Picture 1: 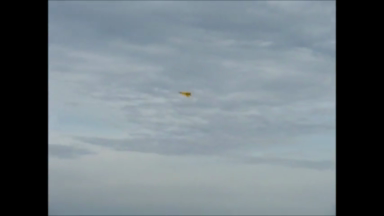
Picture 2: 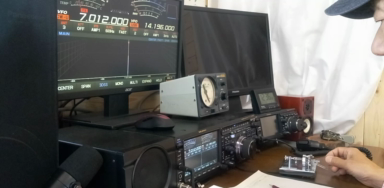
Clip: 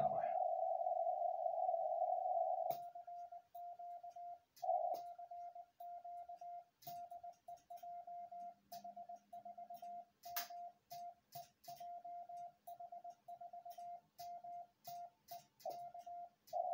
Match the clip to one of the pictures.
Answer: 2